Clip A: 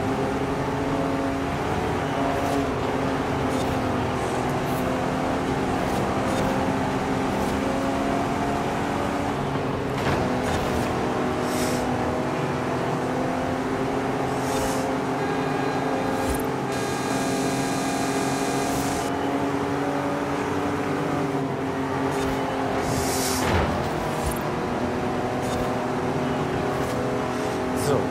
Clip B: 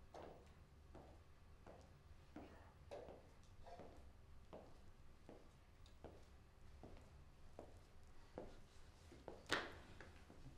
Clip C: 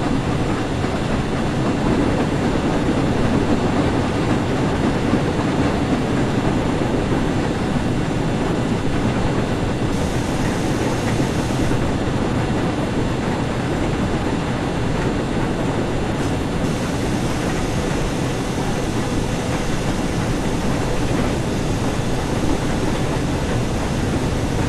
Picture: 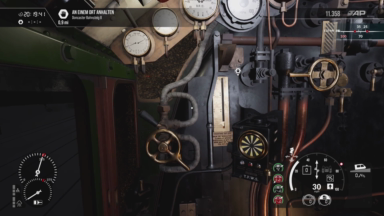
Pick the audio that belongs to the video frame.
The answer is C